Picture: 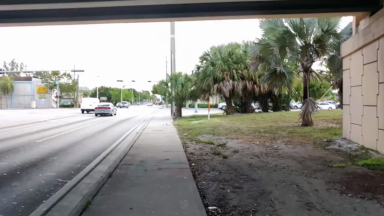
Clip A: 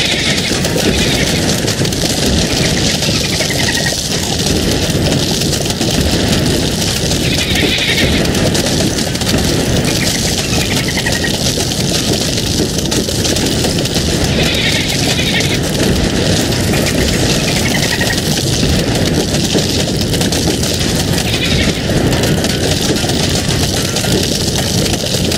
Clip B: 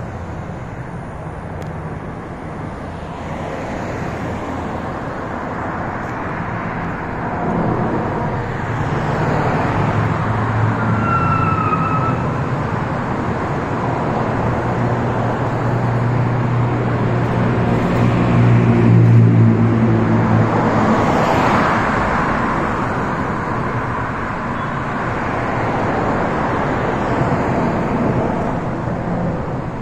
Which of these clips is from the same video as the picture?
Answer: B